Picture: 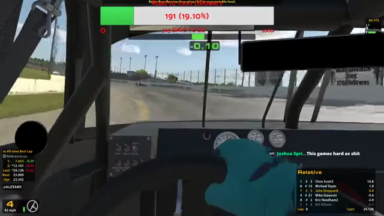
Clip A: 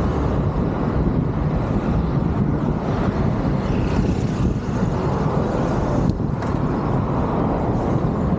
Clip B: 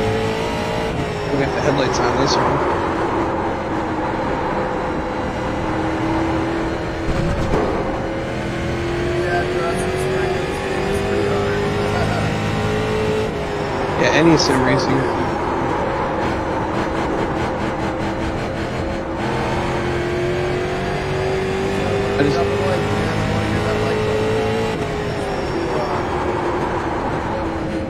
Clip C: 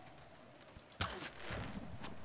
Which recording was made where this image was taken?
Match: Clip B